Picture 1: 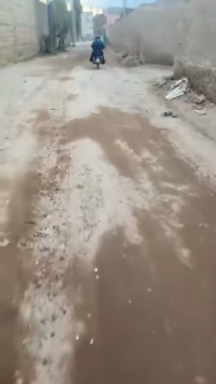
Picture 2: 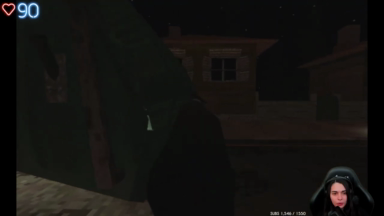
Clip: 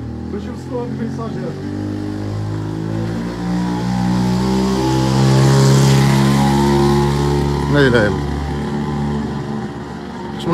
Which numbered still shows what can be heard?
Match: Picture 1